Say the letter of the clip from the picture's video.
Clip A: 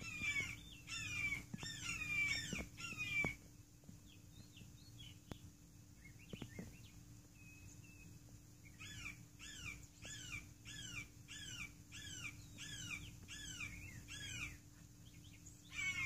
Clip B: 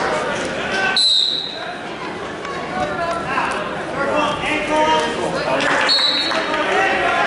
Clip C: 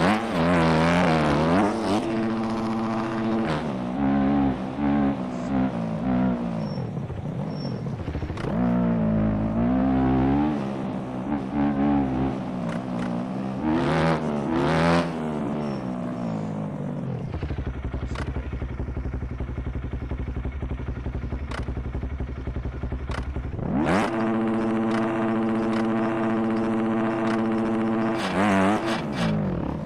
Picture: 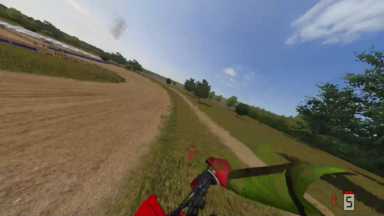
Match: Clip C